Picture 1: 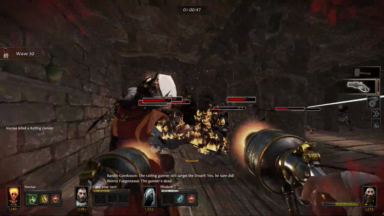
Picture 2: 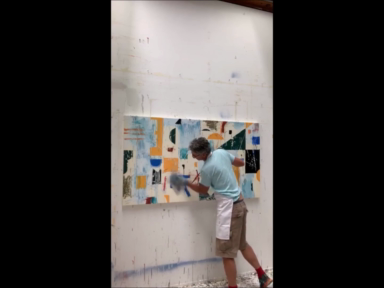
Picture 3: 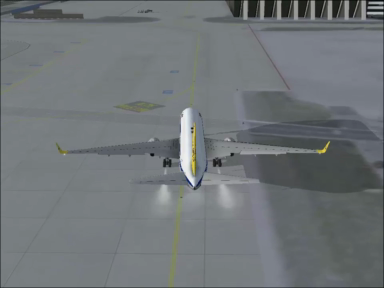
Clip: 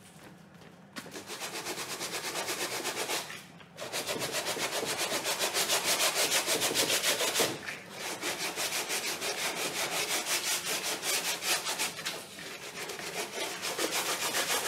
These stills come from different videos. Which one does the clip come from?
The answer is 2